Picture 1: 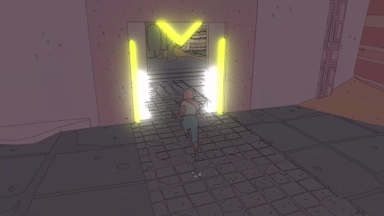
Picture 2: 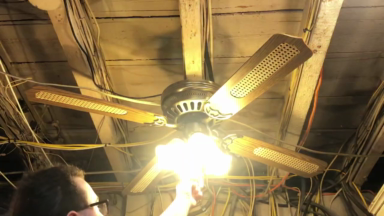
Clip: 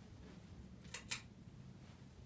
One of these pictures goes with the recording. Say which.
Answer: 2